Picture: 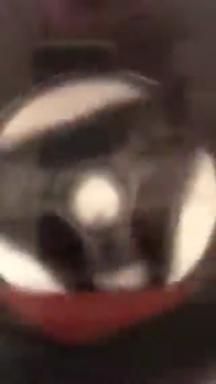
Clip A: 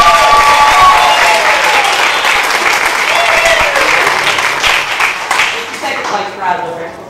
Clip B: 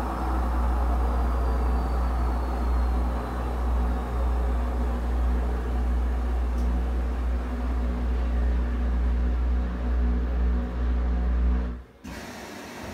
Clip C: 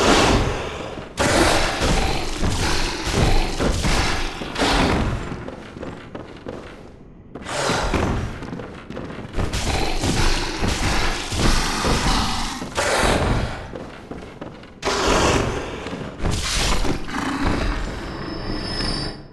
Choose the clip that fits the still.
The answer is B